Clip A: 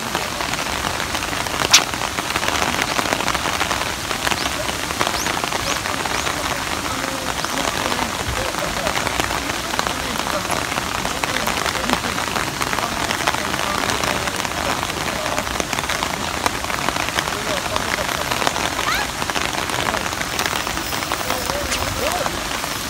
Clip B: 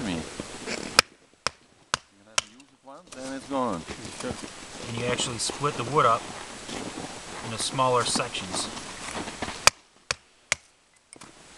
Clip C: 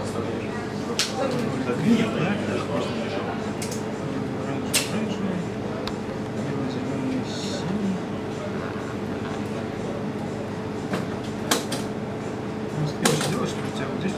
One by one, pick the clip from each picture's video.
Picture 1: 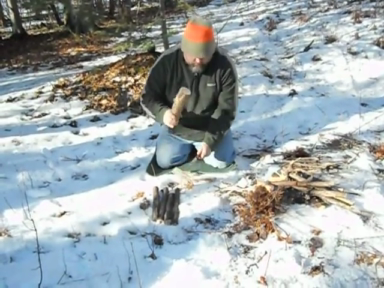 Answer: B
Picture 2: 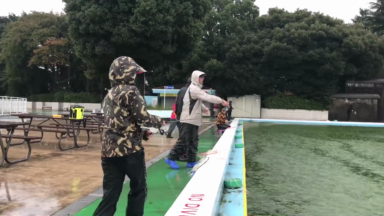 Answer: A